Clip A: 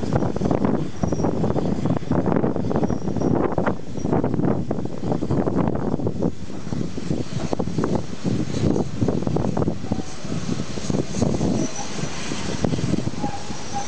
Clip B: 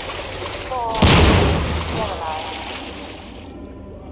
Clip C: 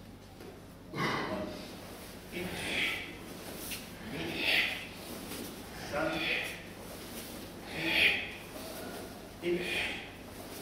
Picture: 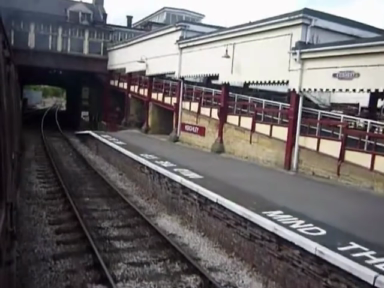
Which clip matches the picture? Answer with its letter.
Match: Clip A